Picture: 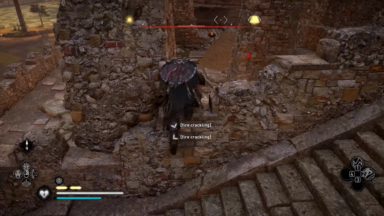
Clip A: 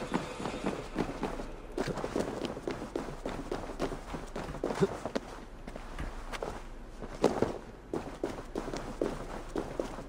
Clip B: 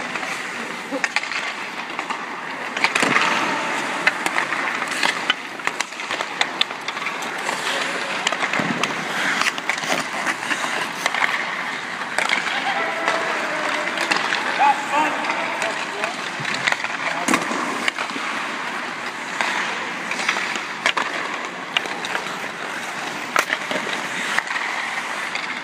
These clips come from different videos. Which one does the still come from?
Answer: A